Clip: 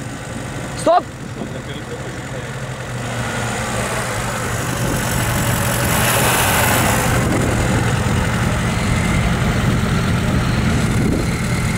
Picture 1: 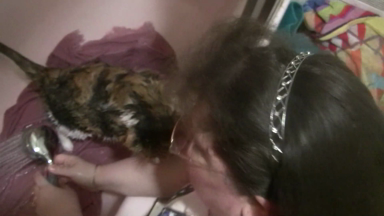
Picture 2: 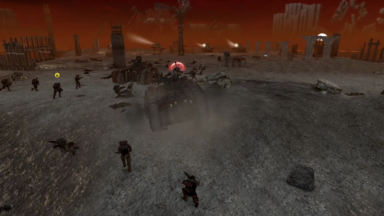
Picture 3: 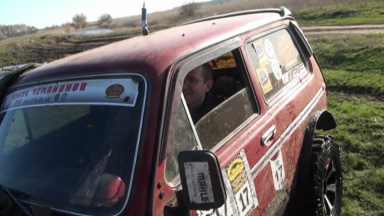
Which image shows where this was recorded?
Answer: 3